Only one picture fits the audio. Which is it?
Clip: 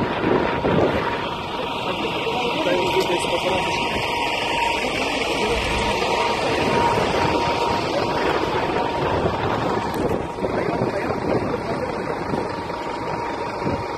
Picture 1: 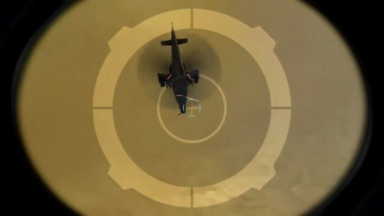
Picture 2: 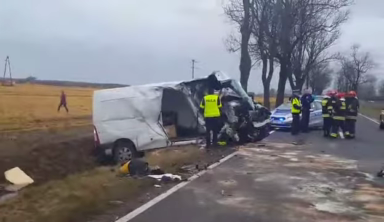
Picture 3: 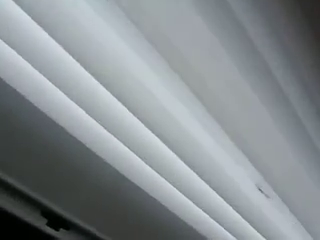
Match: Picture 2